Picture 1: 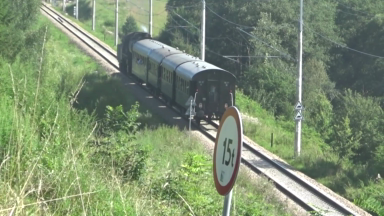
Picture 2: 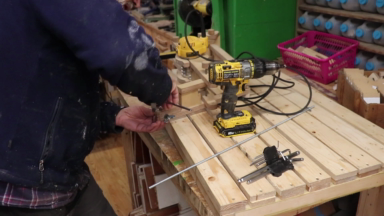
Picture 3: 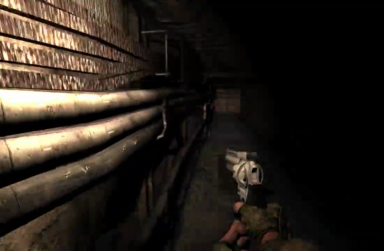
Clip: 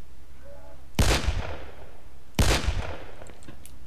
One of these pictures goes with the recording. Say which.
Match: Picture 3